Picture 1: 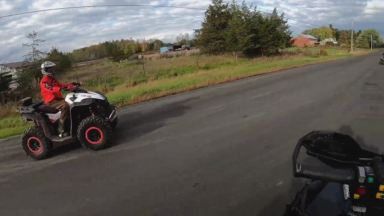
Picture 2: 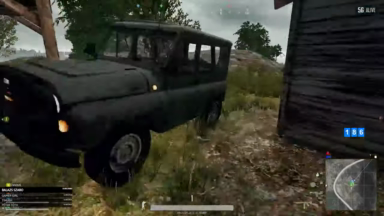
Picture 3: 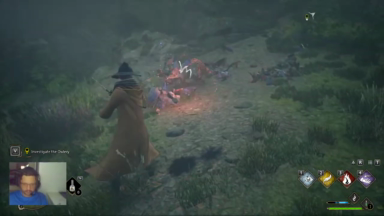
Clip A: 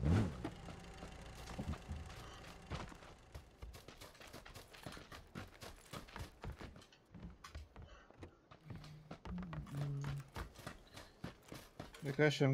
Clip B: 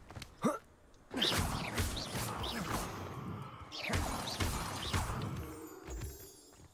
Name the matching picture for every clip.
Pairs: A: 2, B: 3